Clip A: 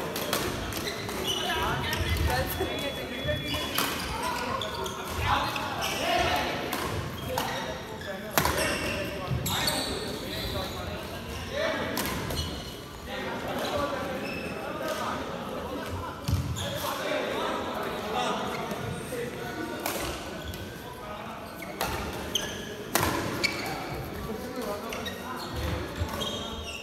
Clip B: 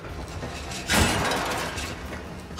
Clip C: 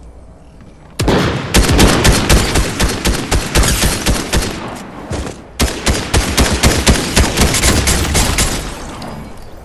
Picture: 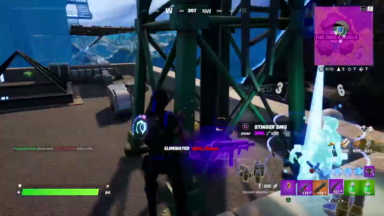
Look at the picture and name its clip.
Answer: C